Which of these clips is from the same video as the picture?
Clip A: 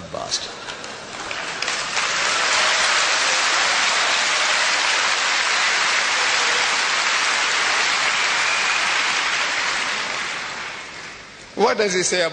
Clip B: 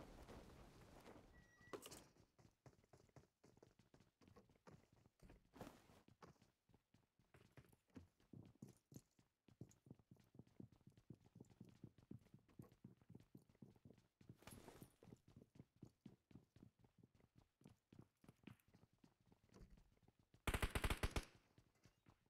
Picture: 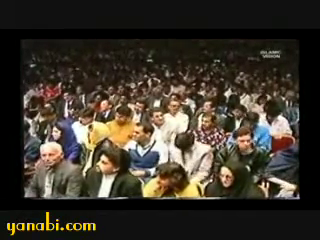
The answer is A